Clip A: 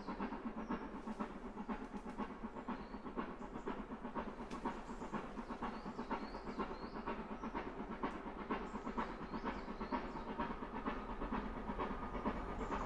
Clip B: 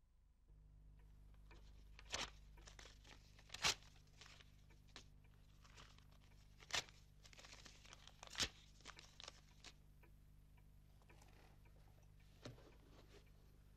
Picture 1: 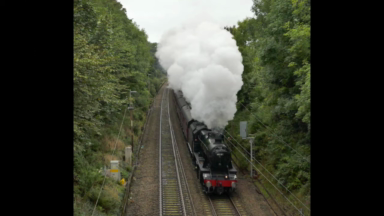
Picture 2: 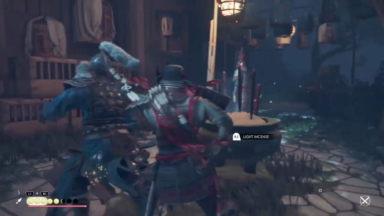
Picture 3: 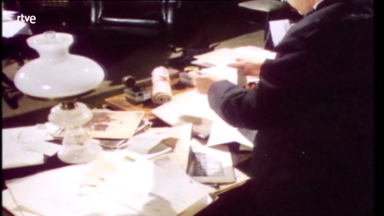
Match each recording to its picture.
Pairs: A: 1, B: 3